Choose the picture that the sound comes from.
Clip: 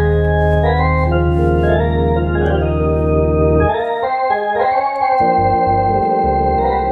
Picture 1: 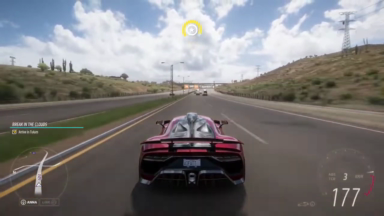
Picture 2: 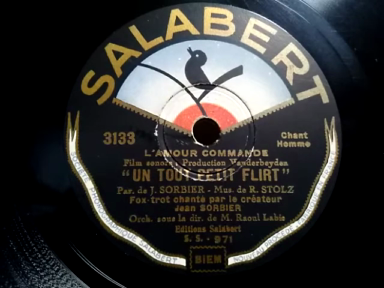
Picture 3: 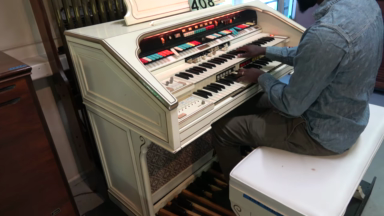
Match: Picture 3